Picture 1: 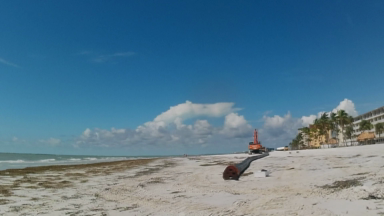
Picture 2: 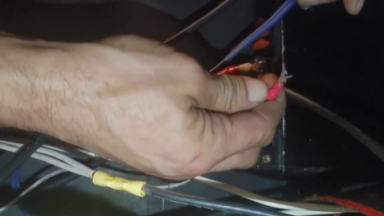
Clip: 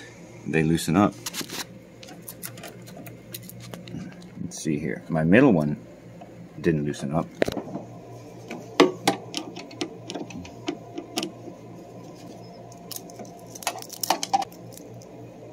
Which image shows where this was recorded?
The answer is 2